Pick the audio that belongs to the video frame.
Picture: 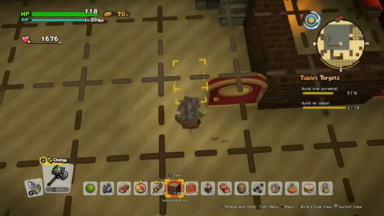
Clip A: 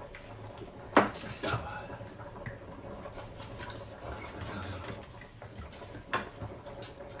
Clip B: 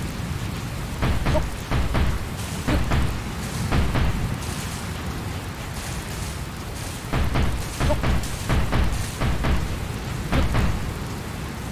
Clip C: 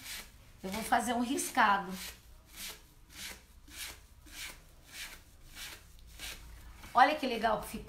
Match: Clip B